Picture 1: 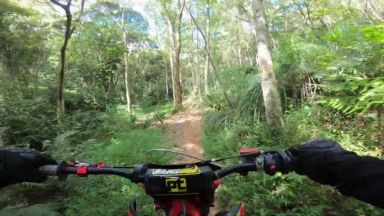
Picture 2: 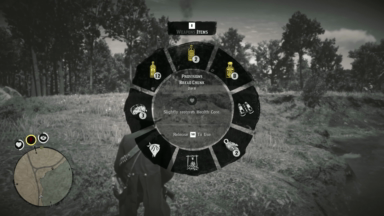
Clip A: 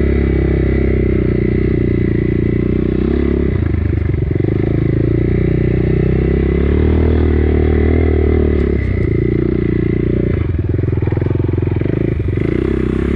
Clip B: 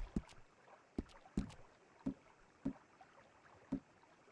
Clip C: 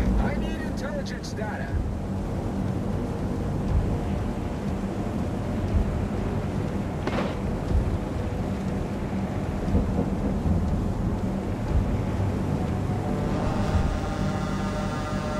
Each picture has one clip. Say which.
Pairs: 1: A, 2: B